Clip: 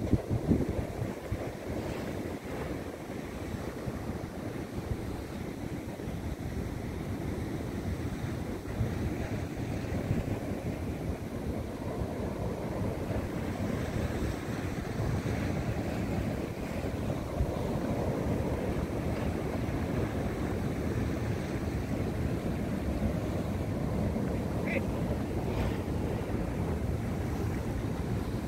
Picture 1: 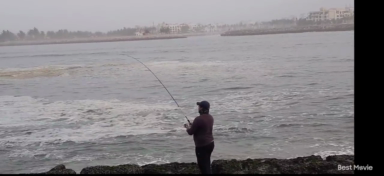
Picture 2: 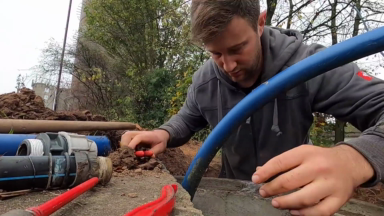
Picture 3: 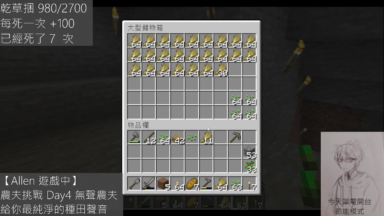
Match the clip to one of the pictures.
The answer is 1